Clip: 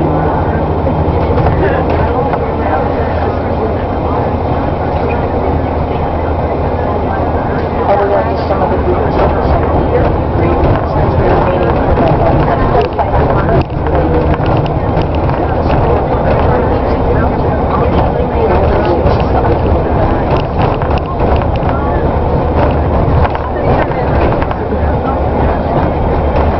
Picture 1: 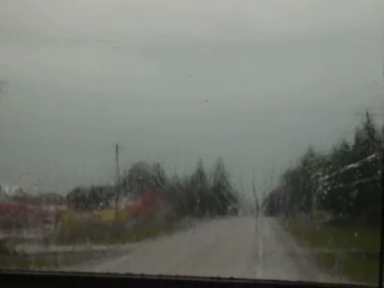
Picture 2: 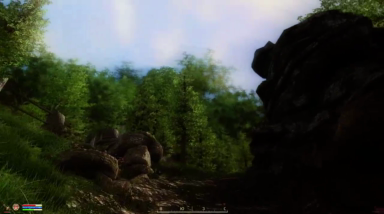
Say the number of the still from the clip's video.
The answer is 1